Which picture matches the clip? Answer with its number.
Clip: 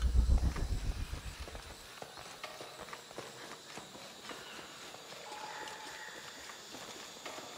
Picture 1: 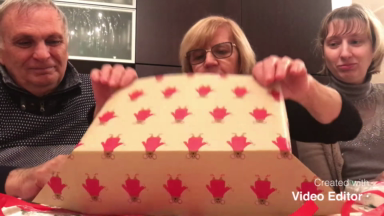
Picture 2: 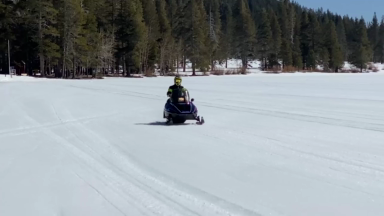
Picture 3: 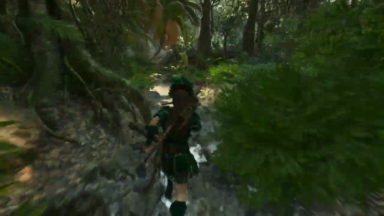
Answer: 3